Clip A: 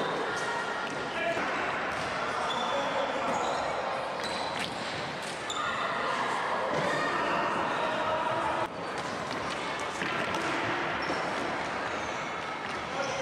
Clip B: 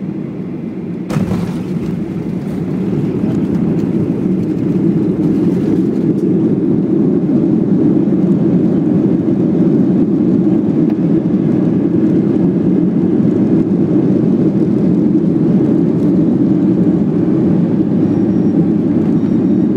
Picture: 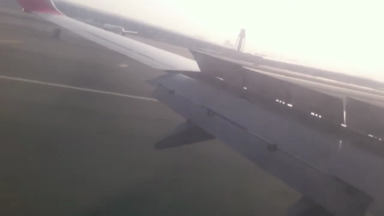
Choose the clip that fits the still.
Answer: B